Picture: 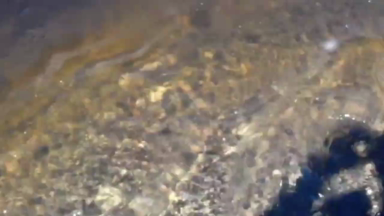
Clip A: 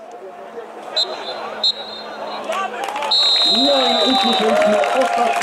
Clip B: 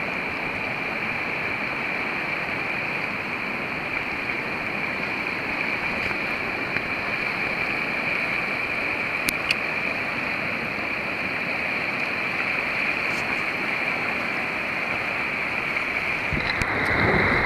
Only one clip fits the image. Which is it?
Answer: B